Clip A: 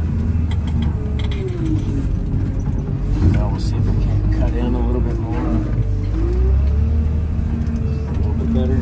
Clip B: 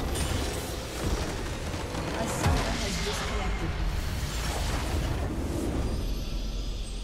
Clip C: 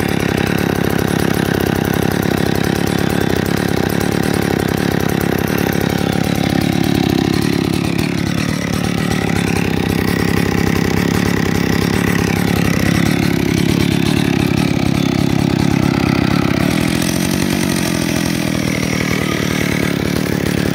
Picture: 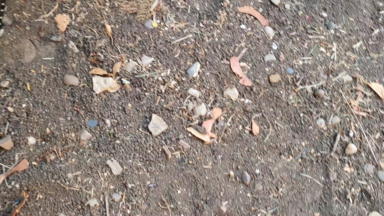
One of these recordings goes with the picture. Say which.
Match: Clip C